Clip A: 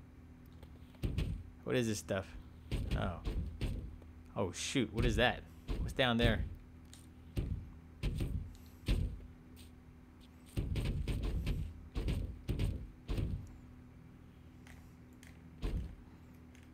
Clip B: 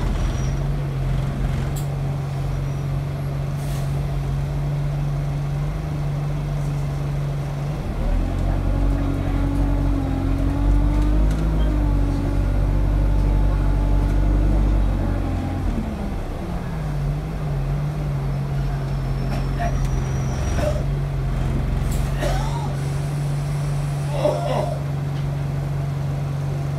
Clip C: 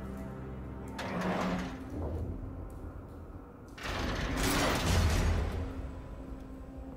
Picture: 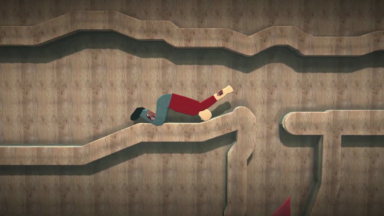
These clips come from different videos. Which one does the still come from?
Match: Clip A